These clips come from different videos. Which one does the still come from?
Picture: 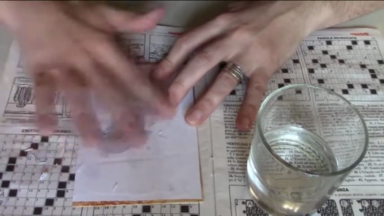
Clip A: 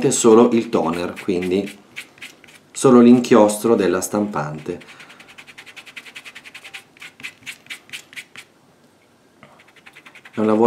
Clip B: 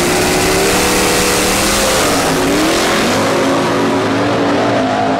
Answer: A